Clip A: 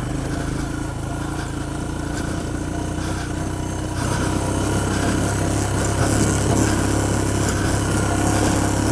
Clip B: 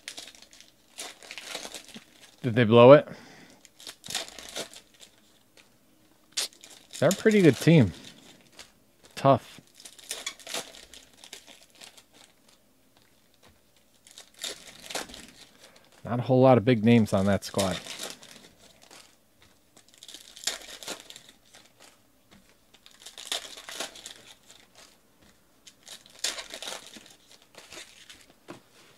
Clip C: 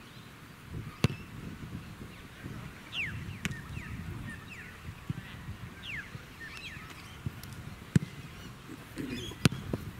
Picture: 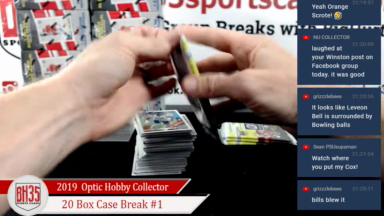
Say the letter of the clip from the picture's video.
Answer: B